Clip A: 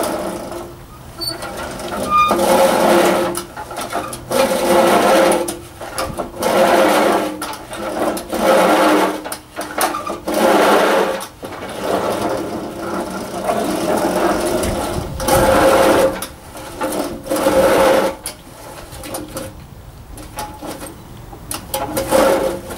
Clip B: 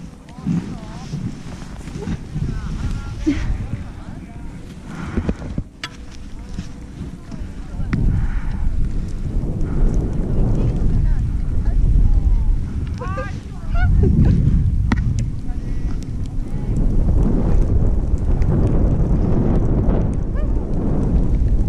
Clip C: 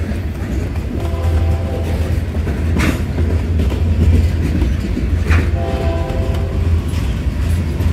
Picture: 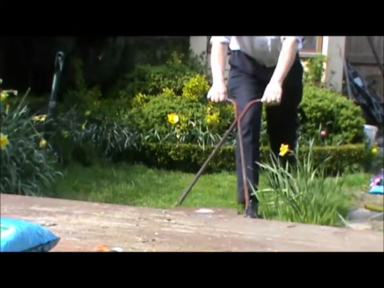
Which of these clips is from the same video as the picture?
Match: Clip A